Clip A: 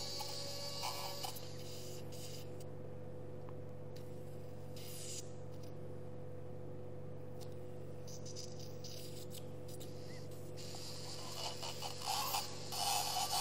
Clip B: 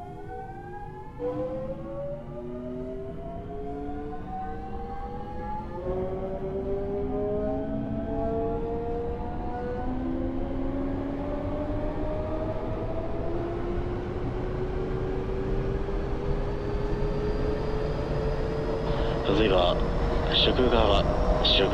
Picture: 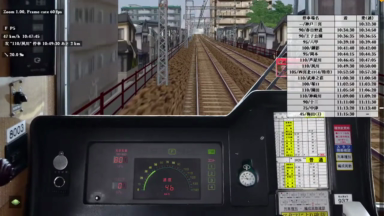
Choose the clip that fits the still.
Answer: B